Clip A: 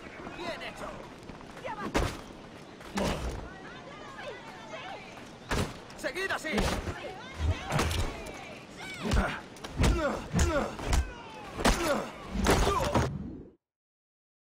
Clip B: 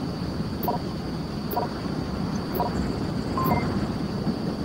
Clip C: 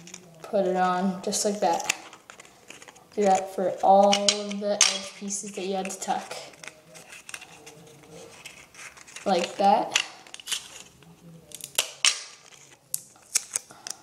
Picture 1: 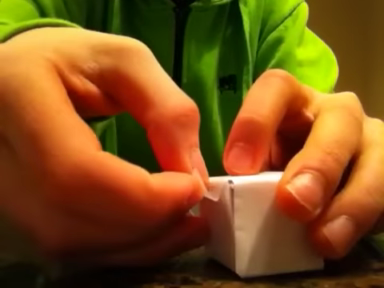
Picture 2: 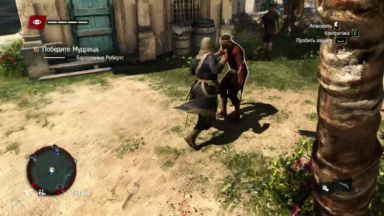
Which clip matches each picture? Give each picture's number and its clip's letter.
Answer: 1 C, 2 A